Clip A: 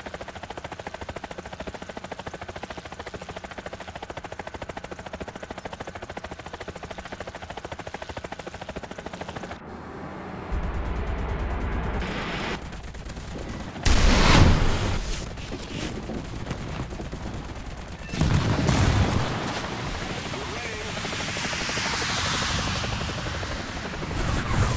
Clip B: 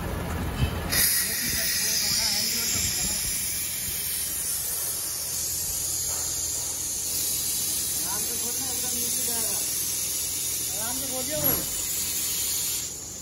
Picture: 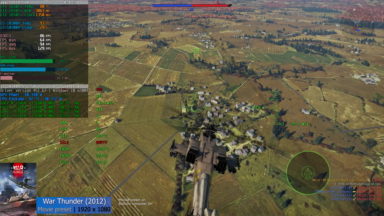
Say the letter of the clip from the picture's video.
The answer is A